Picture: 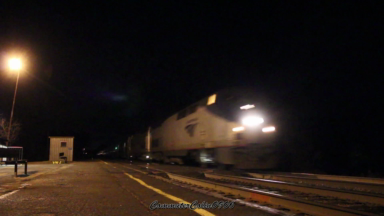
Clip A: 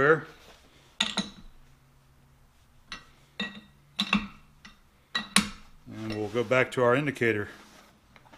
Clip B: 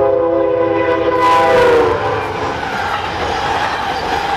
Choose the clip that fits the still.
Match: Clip B